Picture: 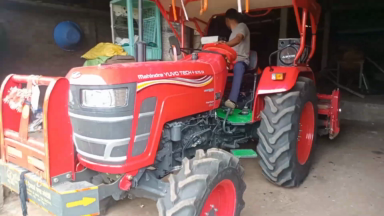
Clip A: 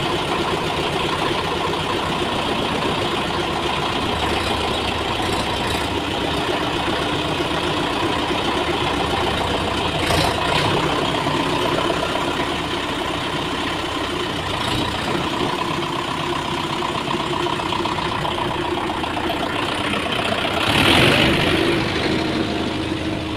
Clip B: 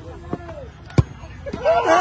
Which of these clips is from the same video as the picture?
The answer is A